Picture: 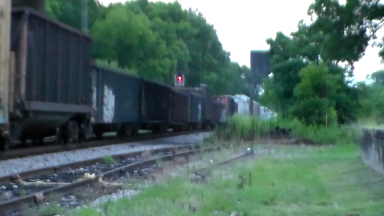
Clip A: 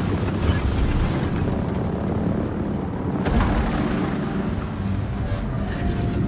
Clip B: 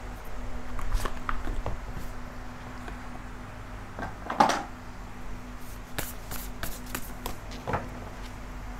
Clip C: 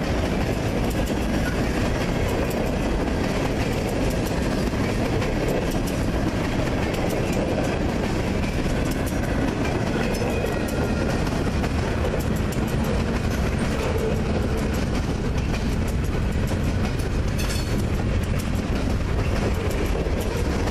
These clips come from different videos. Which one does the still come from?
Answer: C